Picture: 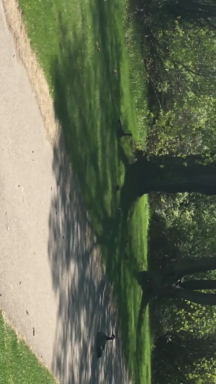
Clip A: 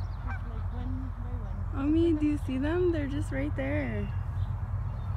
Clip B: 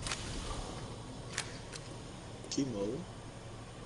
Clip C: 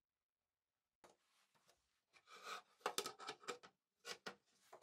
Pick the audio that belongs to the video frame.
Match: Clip A